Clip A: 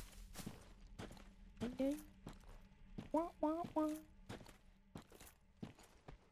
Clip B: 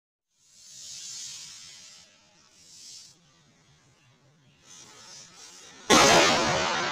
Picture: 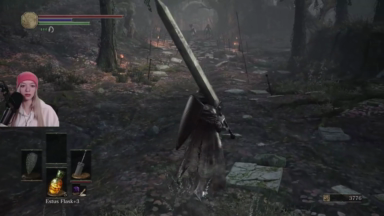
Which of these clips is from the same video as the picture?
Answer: A